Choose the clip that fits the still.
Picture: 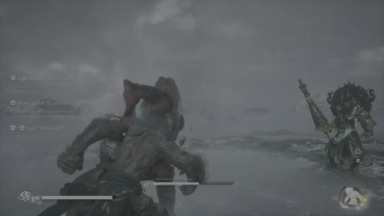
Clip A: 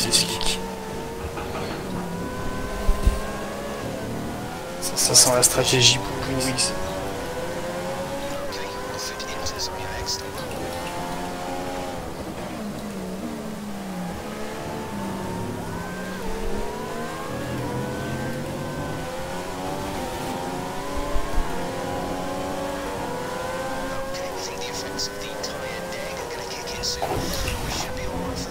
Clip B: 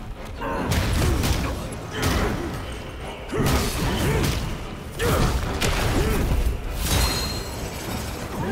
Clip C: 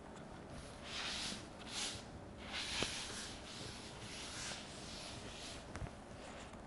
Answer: B